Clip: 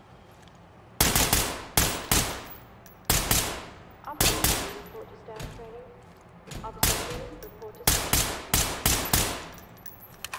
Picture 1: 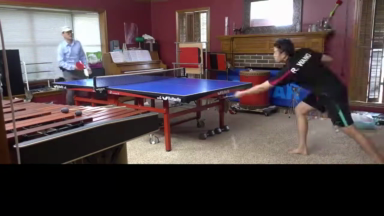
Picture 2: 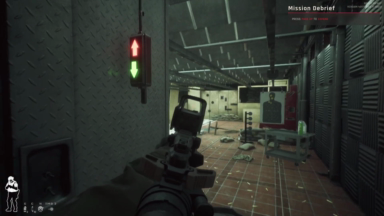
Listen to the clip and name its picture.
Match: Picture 2